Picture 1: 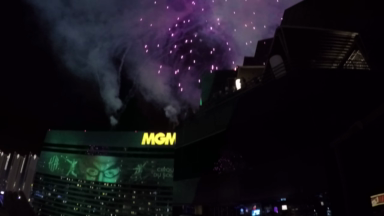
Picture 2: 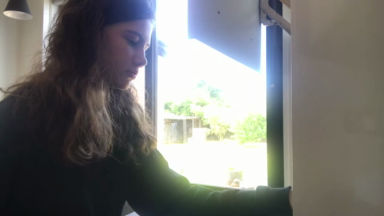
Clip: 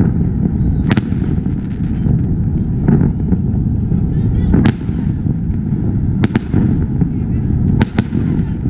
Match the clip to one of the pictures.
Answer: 1